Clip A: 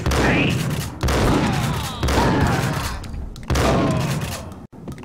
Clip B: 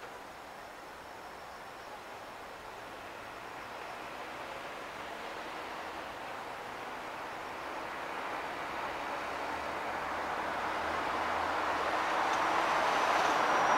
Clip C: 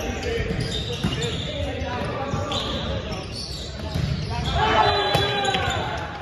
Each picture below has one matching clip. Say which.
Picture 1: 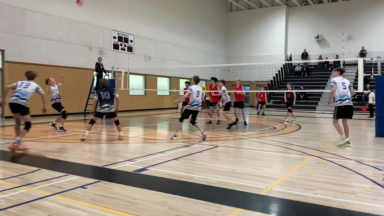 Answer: C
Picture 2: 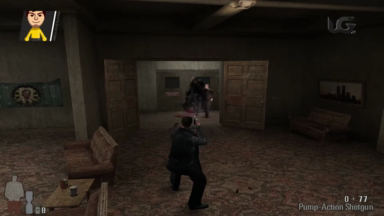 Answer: A